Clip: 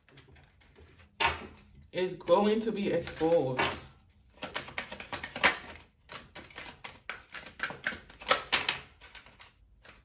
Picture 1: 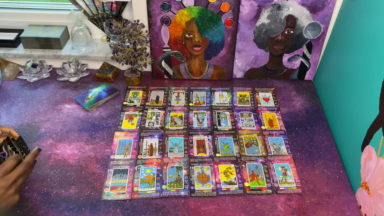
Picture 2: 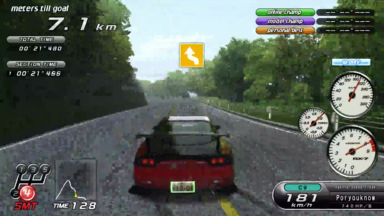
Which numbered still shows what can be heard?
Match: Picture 1